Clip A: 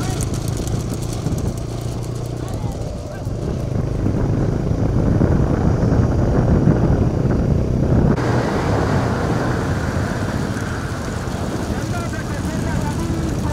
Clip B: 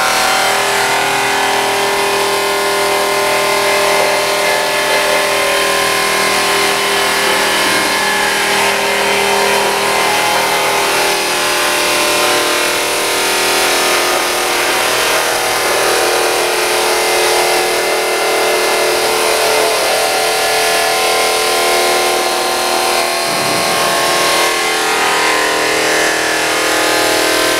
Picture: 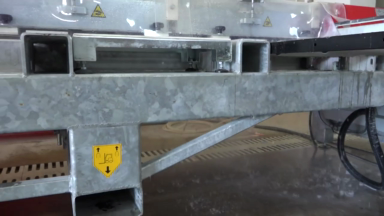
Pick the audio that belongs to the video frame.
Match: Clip B